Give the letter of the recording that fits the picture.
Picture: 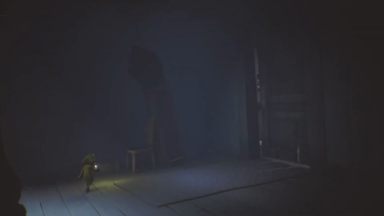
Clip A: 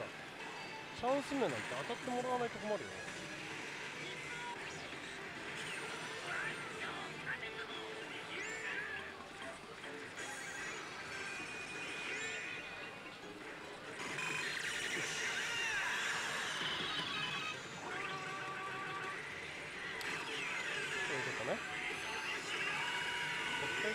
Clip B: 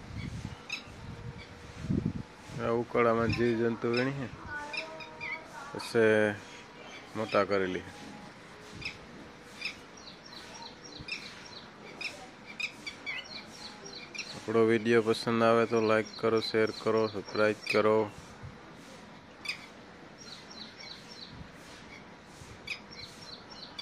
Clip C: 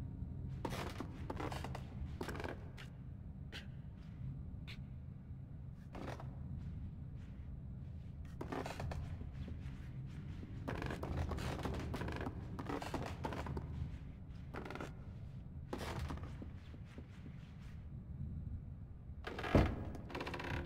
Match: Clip C